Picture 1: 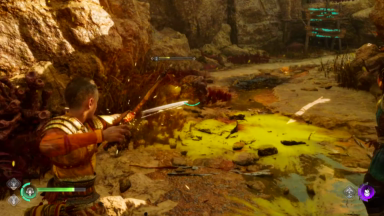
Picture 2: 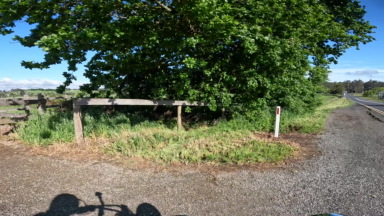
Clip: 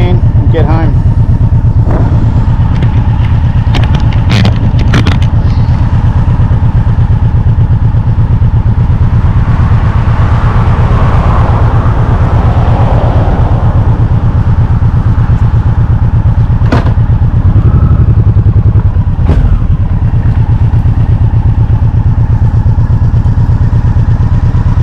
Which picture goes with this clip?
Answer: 2